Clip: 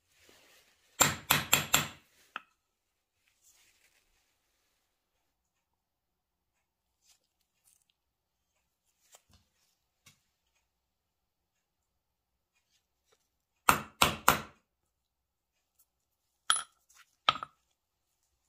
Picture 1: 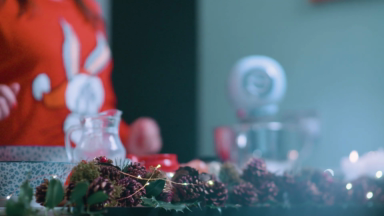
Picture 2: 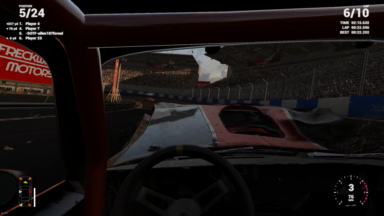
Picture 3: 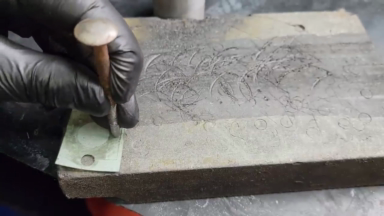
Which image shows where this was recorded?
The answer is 3